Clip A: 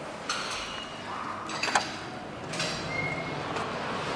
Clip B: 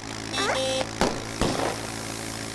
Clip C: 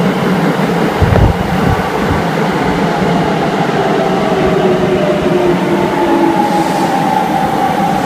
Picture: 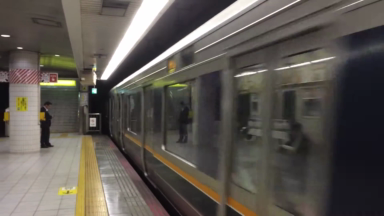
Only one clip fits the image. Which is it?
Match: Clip C